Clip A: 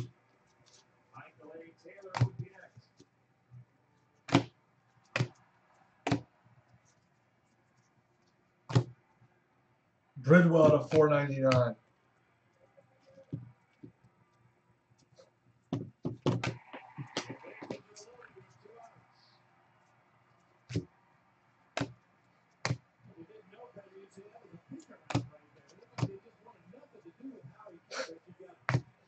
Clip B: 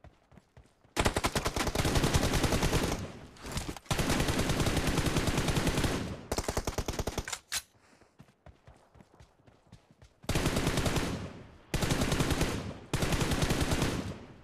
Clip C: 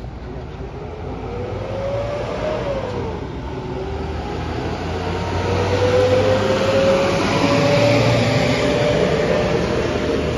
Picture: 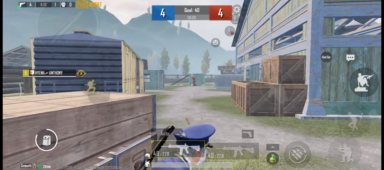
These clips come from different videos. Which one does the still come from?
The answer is B